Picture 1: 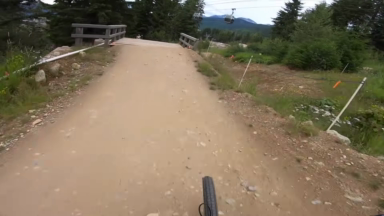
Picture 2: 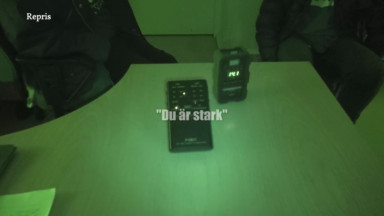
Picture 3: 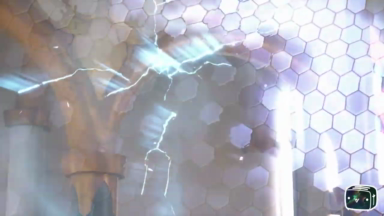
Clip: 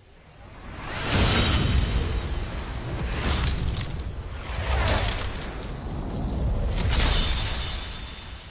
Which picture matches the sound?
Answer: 3